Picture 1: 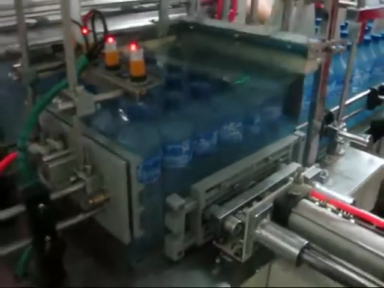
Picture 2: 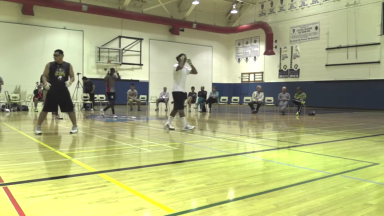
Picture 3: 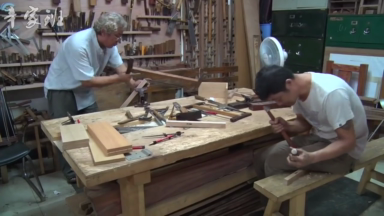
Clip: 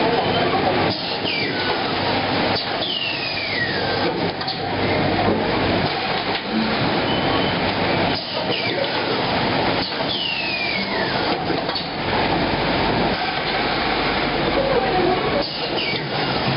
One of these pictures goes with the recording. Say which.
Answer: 1